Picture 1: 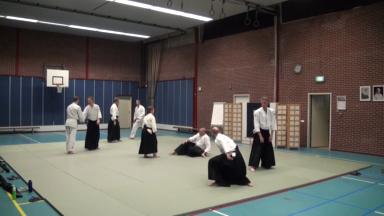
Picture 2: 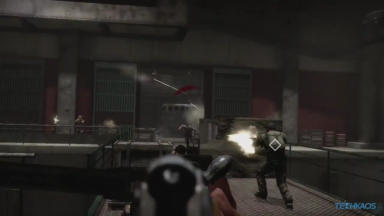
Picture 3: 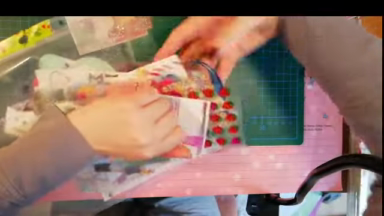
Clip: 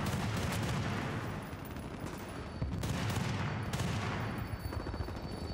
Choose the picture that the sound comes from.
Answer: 2